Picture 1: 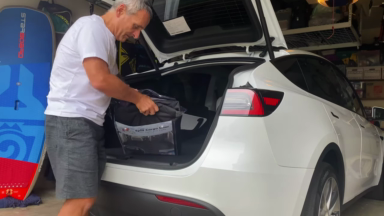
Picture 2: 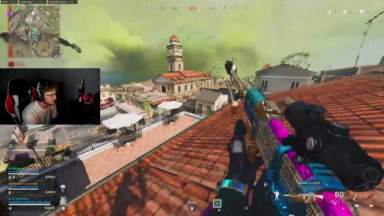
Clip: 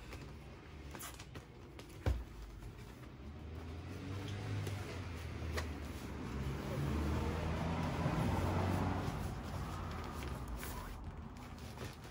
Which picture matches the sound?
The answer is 1